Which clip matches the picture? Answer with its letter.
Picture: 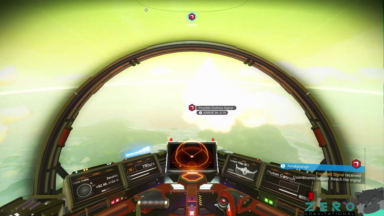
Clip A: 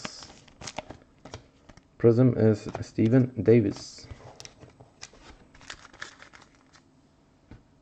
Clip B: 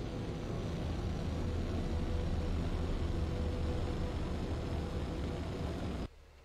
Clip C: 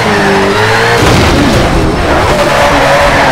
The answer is B